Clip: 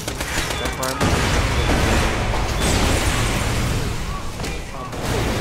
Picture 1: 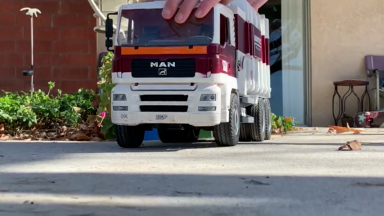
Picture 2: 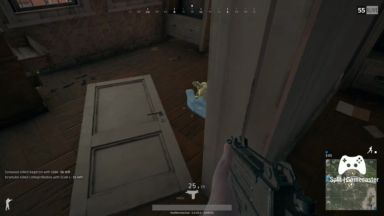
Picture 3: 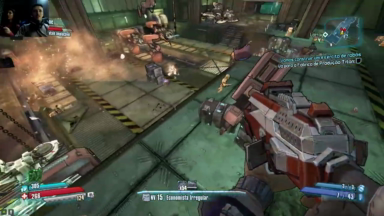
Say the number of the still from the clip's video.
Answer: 3